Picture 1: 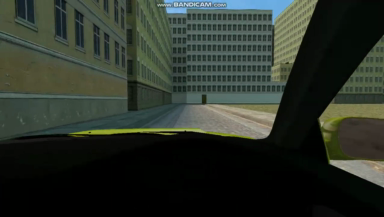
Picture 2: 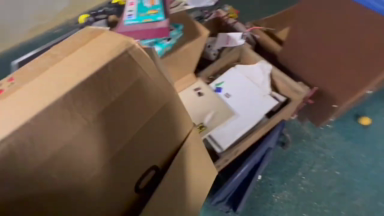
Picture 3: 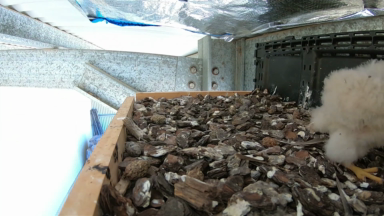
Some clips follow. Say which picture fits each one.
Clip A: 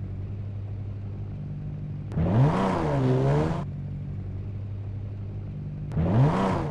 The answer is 1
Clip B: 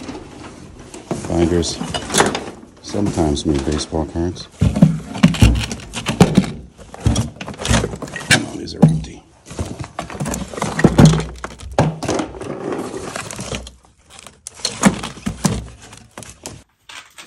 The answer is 2